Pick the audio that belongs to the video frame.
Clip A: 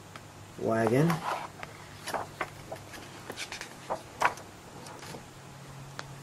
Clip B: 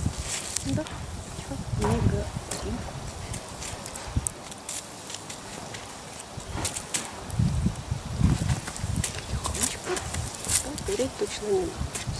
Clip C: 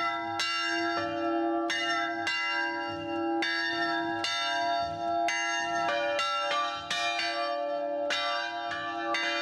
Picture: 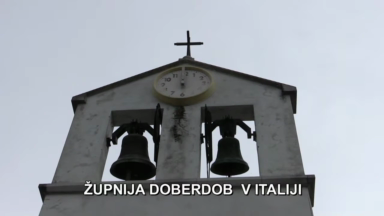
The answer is C